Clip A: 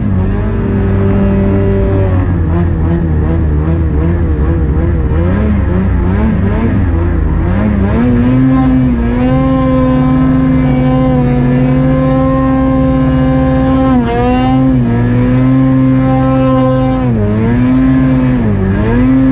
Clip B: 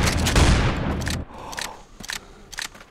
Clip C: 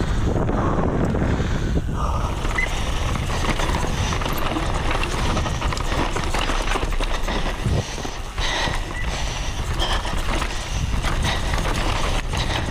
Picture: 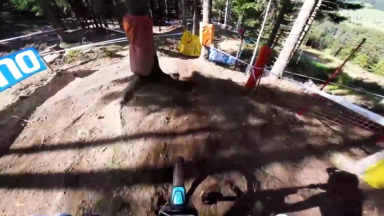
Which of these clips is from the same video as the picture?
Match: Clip C